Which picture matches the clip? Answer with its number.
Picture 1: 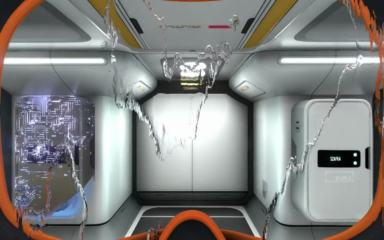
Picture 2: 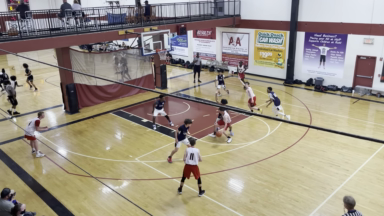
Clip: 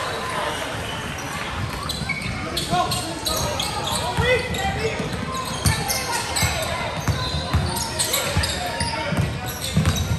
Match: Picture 2